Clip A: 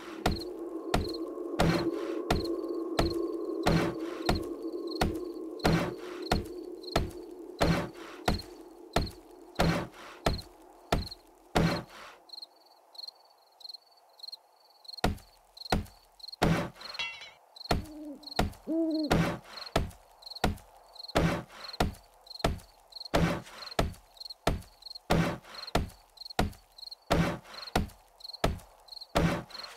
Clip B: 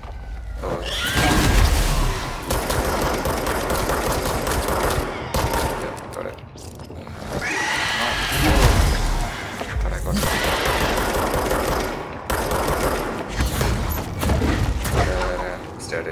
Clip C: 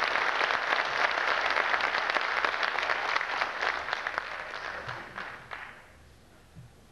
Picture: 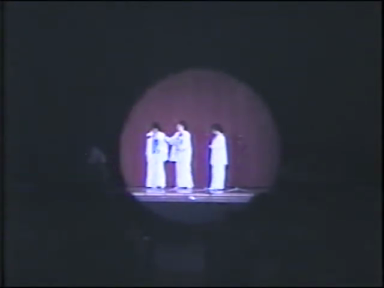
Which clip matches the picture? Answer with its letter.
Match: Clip C